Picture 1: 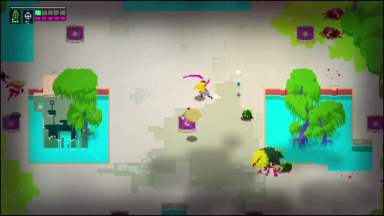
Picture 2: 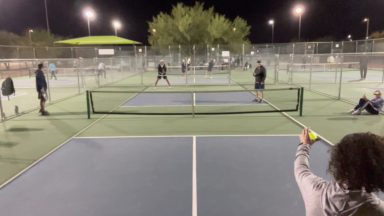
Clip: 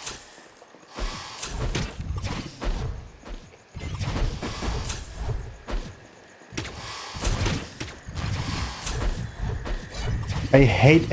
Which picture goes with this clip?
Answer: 1